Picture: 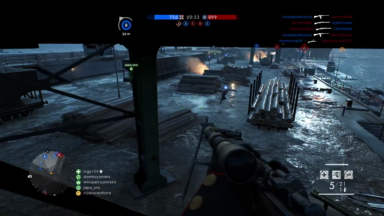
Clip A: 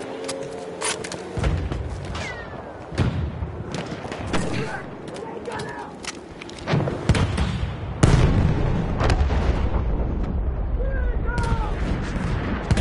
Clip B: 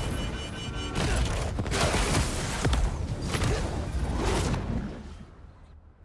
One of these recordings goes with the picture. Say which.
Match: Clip A